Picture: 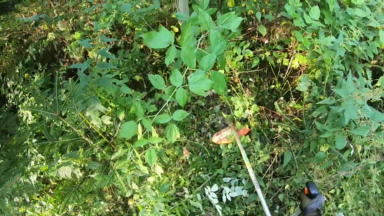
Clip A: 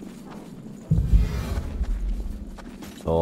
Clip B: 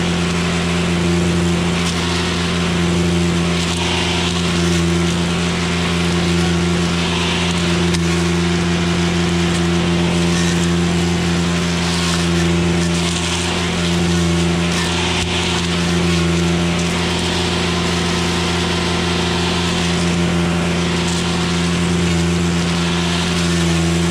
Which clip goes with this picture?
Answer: B